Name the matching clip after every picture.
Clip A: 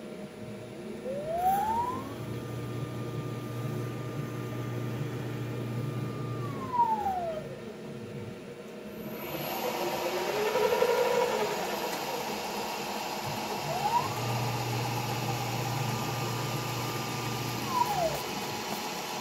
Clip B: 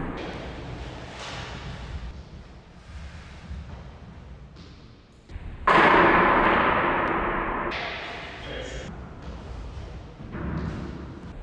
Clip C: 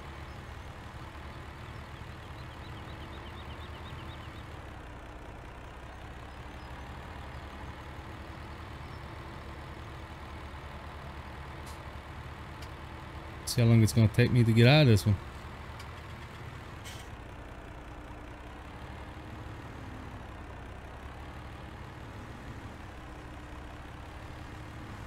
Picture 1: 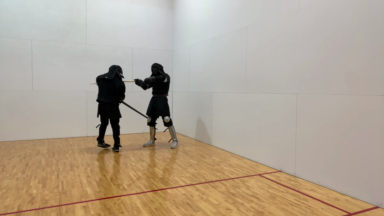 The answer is B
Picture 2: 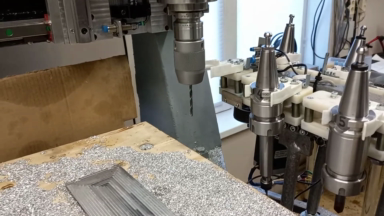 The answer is A